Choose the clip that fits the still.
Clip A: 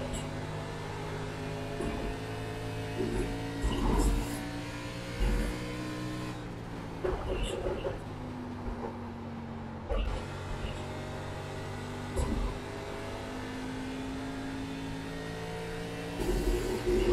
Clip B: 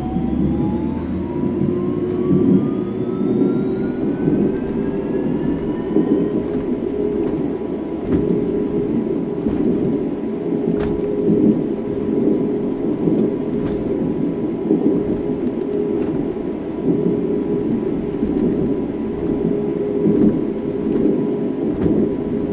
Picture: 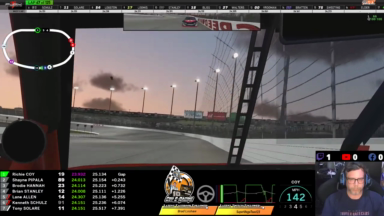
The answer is A